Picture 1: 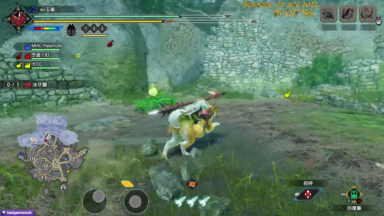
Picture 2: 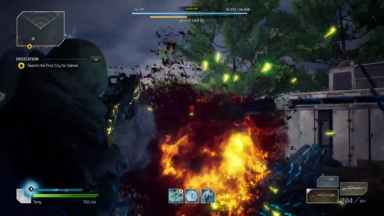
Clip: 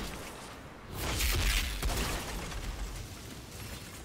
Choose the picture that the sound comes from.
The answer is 2